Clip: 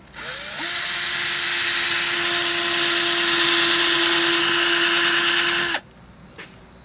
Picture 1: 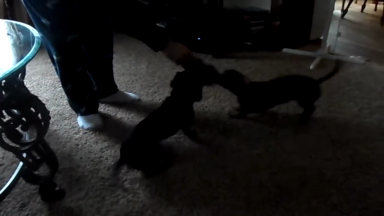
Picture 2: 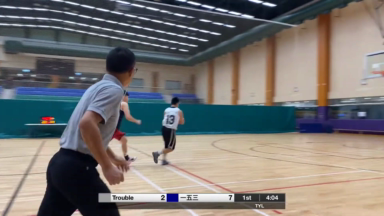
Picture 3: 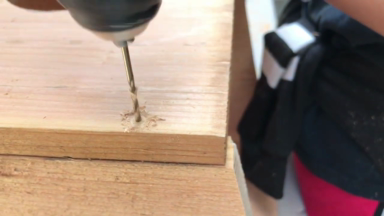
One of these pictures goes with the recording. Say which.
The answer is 3